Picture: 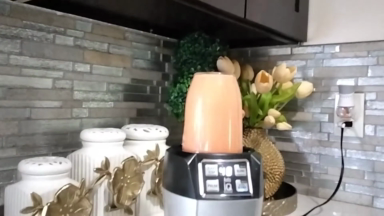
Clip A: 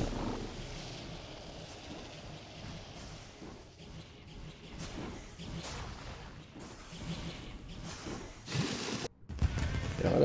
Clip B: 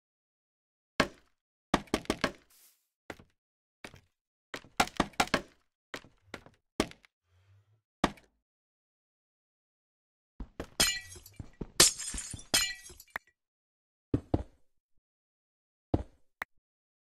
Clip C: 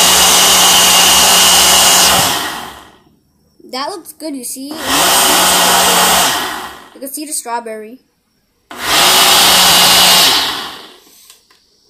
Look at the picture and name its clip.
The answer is C